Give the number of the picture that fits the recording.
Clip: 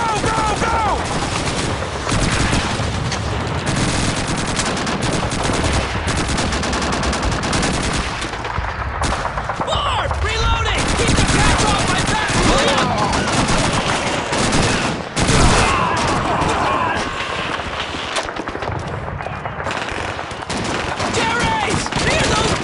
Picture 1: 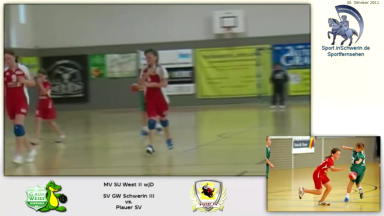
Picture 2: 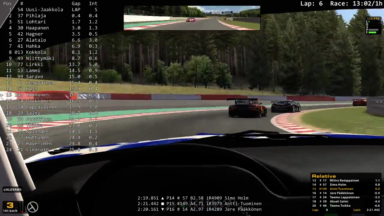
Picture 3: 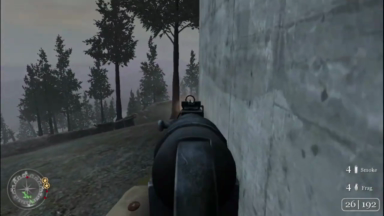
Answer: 3